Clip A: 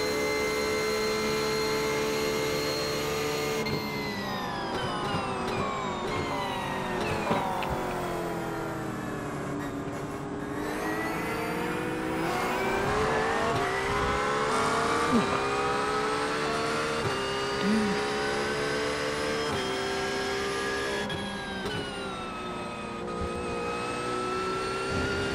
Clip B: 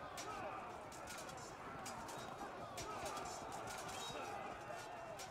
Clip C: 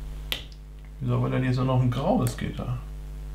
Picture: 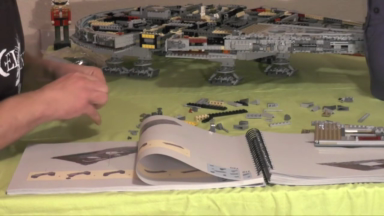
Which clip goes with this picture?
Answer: C